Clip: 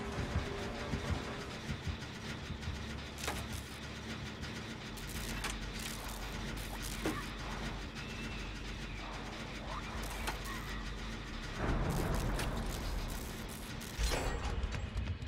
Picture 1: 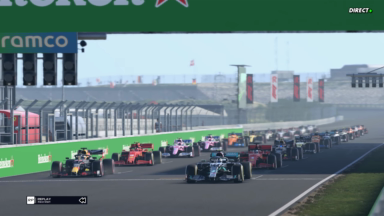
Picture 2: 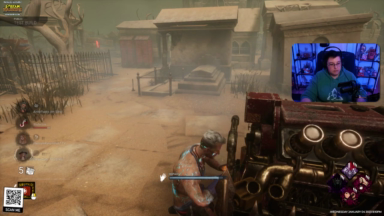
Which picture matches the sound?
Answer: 2